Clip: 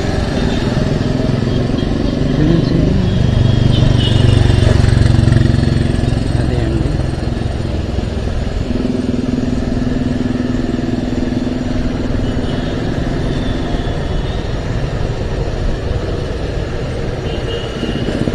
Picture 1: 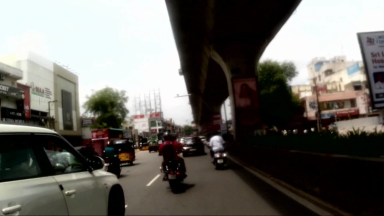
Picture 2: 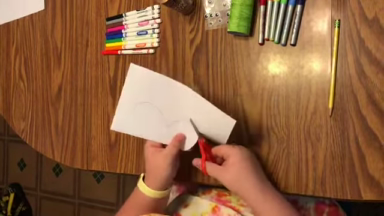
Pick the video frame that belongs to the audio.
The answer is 1